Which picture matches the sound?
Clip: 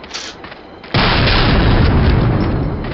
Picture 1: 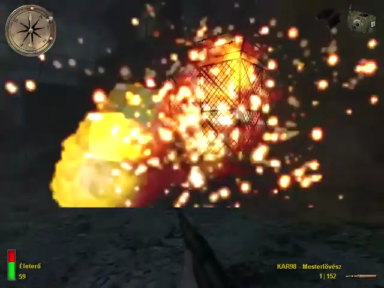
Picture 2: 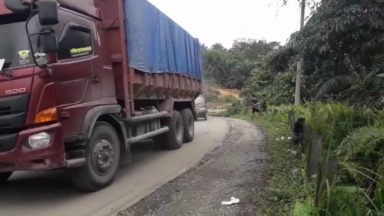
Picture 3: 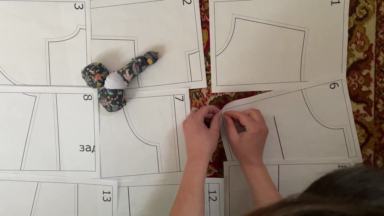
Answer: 1